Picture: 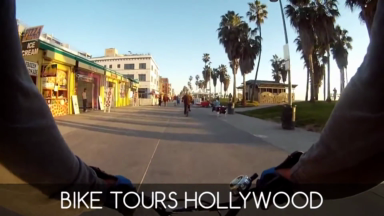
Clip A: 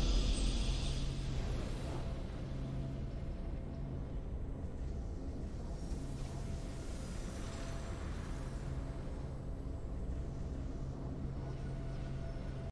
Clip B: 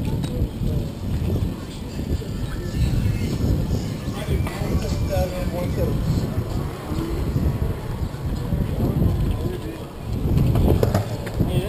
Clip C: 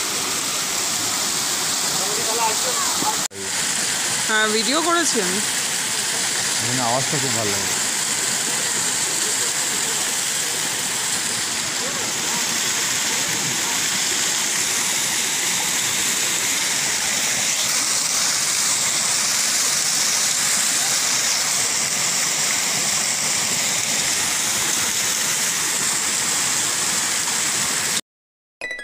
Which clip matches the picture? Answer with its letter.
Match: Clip B